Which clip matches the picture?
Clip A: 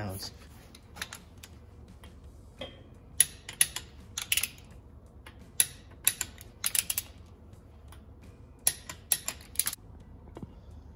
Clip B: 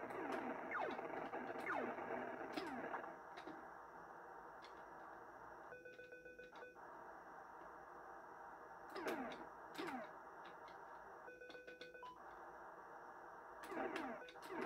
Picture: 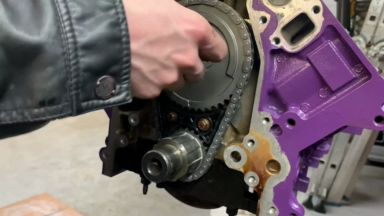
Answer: A